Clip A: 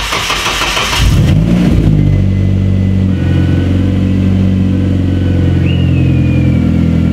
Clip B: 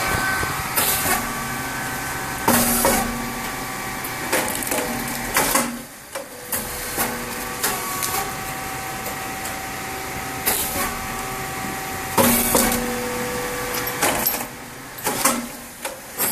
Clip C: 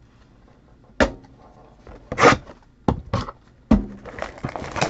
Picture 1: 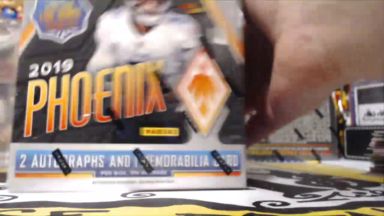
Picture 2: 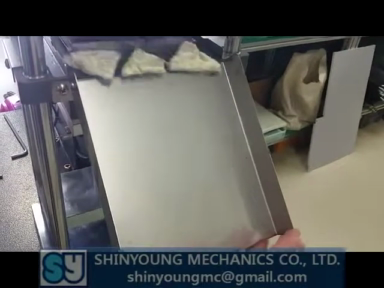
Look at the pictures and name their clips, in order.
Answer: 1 C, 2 B